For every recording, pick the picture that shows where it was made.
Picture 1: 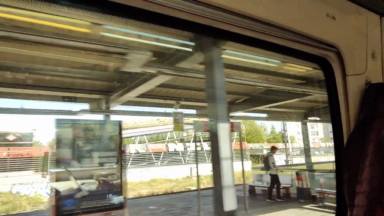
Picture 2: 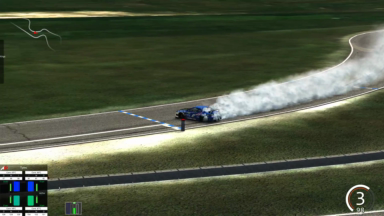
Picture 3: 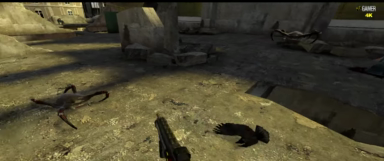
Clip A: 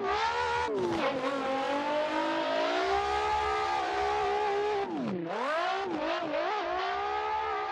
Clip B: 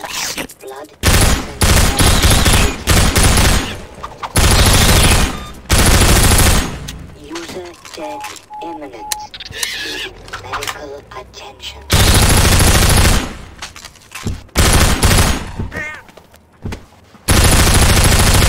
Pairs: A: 2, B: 3